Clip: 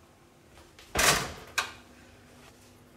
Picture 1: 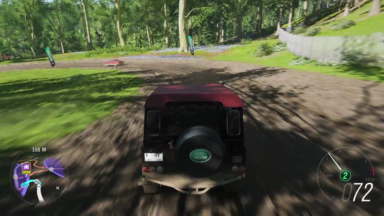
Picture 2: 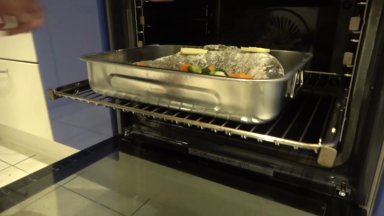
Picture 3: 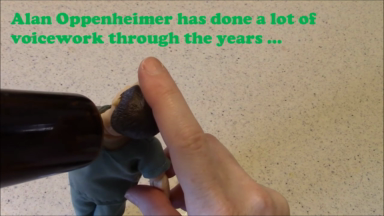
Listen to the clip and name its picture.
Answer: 2